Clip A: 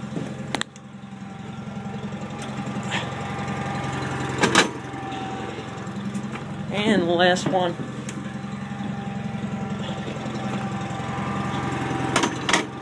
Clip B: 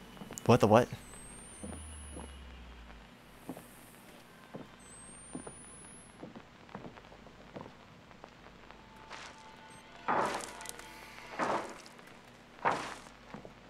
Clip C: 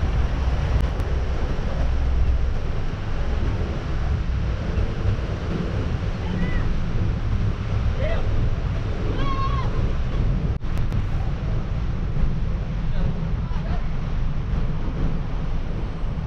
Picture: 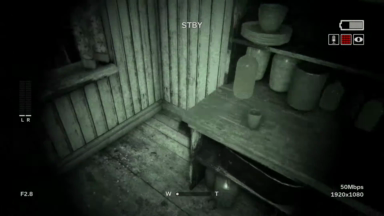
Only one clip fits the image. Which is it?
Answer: B